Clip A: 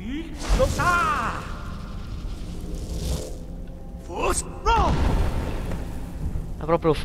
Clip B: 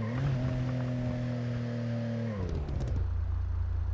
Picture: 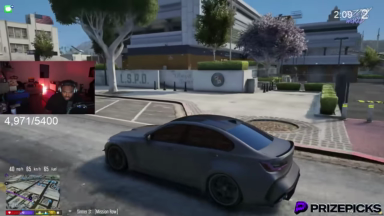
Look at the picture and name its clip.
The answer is B